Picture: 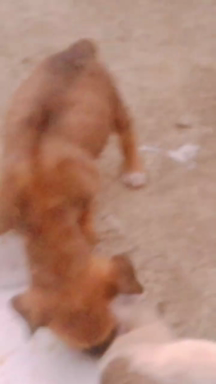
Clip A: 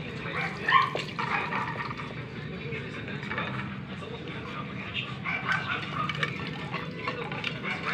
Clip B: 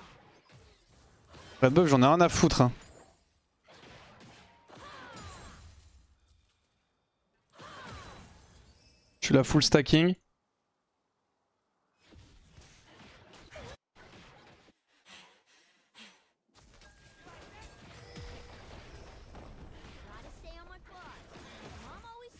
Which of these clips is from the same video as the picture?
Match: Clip A